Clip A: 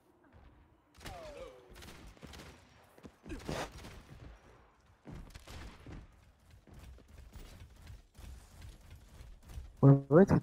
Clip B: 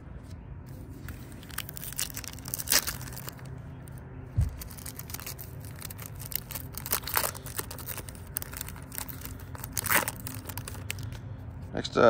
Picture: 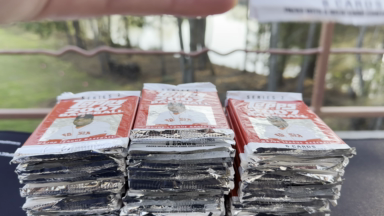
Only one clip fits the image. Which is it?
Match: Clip B